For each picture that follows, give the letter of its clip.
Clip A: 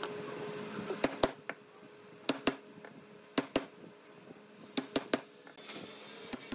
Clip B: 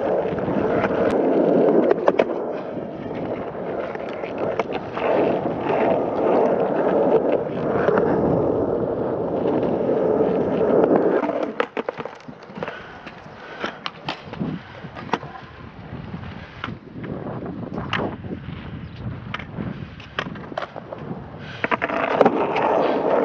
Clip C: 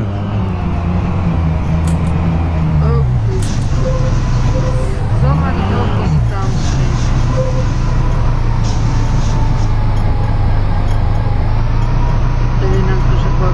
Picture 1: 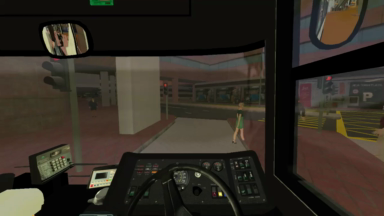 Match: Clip C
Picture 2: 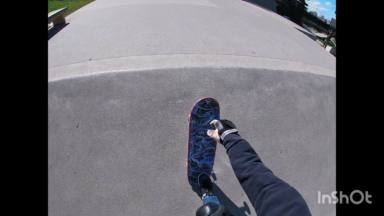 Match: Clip B